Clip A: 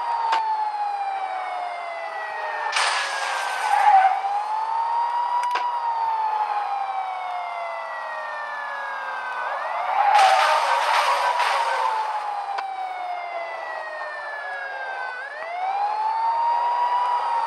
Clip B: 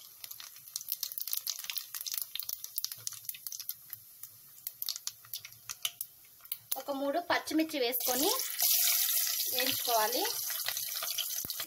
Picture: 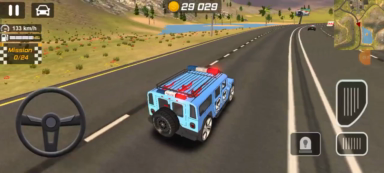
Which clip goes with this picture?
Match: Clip A